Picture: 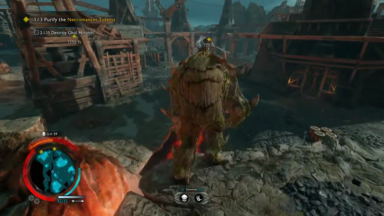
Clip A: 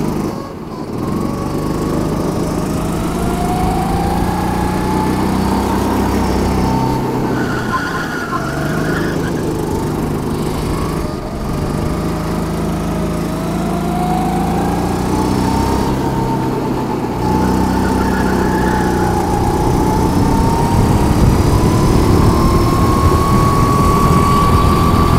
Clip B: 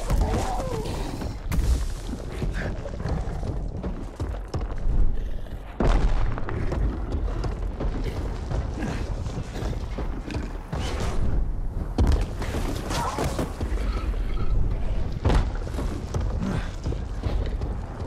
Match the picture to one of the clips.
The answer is B